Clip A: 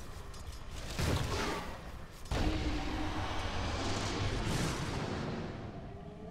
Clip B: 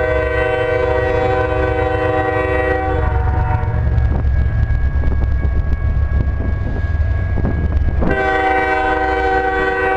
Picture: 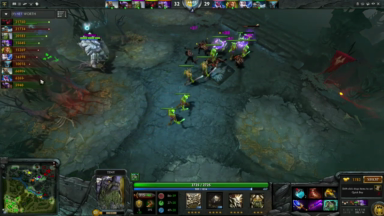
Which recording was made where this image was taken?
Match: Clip A